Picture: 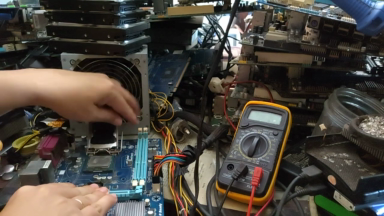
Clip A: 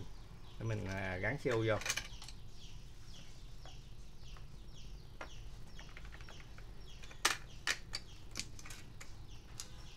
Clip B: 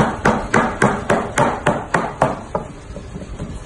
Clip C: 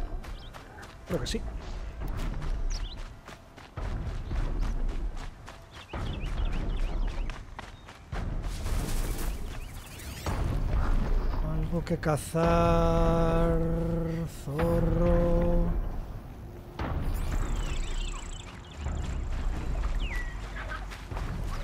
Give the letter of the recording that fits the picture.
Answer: A